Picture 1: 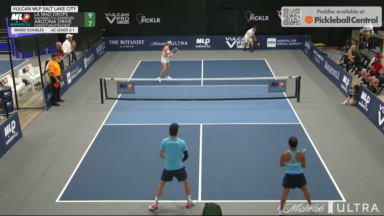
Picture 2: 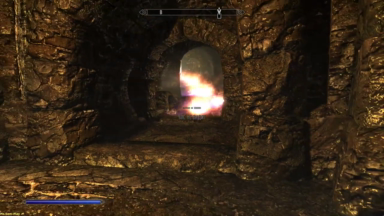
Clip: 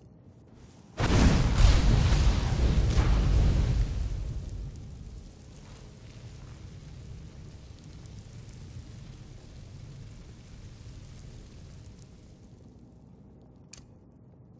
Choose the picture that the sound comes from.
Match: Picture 2